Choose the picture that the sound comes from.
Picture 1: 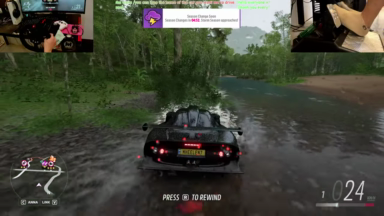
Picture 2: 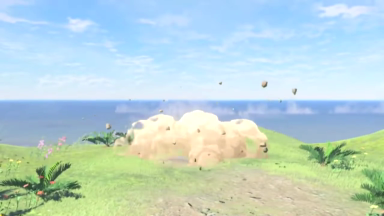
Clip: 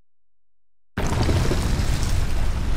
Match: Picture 2